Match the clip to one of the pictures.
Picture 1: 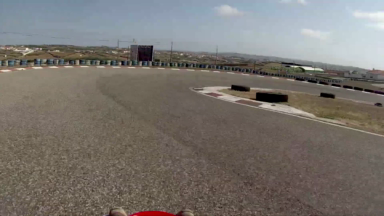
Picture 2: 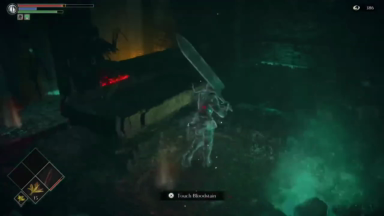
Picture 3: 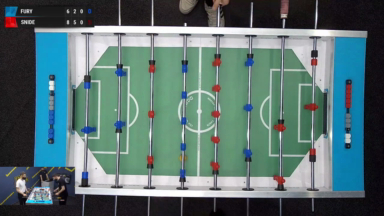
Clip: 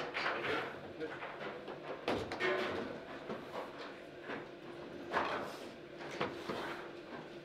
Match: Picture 3